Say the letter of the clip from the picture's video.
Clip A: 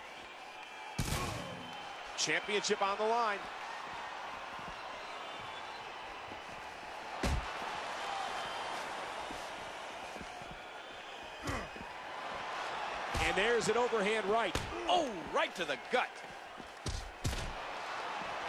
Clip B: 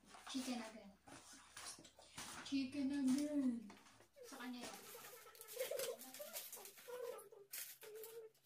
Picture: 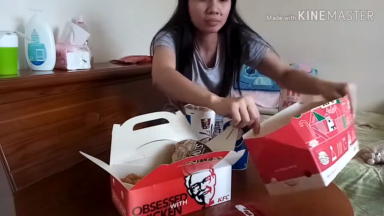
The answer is B